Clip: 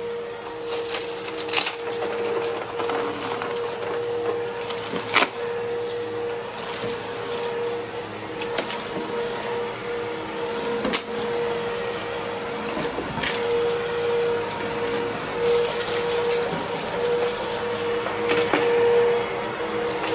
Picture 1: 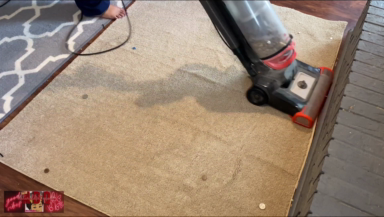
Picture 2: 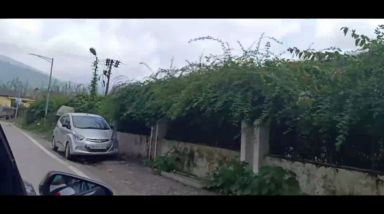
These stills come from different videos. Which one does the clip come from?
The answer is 1